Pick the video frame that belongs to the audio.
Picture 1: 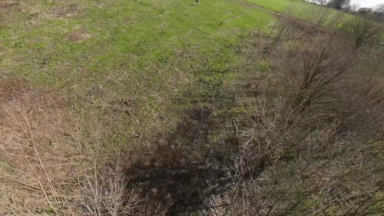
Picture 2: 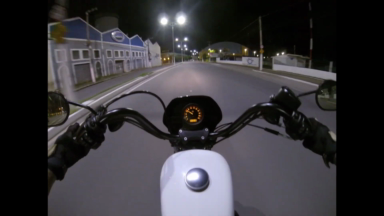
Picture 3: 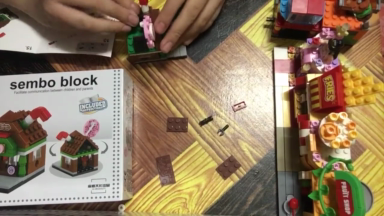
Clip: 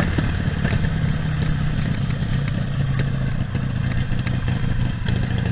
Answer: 2